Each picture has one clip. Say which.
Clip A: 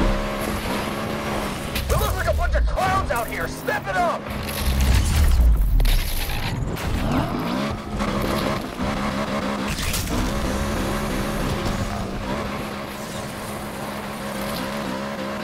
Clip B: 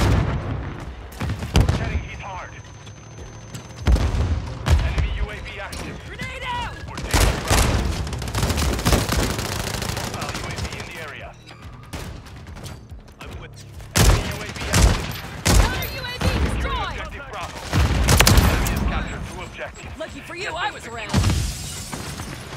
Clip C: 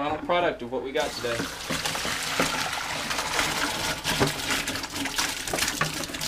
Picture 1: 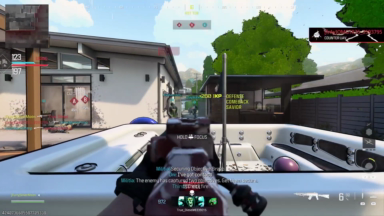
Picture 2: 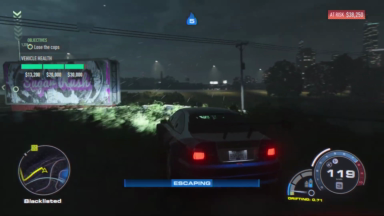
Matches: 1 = B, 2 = A